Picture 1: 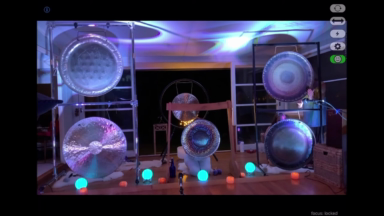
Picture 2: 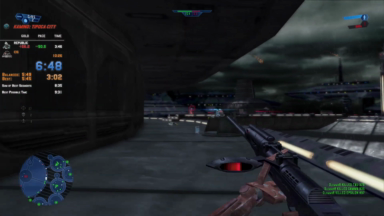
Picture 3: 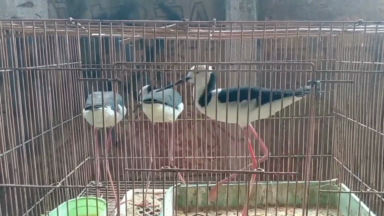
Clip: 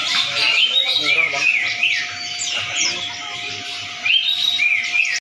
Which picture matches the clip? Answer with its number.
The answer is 3